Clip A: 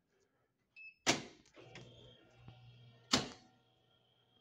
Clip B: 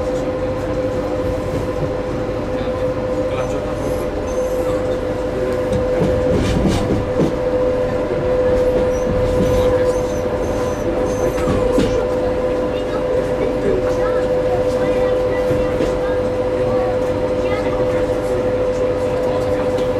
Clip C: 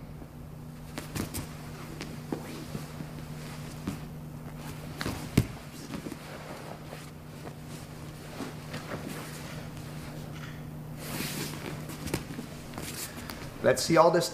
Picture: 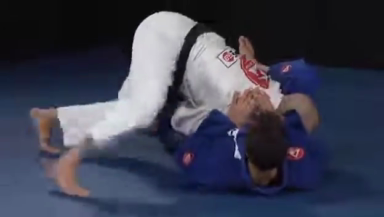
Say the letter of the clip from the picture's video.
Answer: C